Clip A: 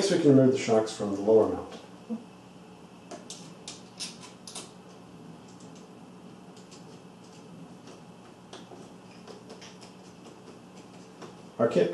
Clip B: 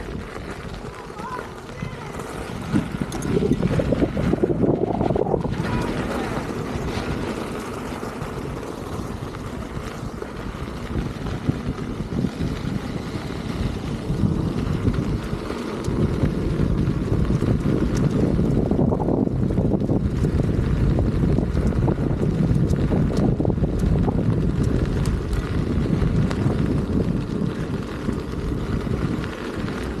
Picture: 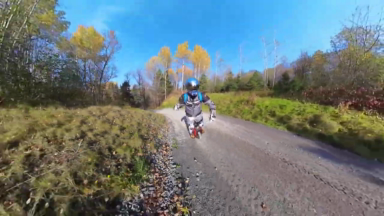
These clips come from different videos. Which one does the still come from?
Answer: B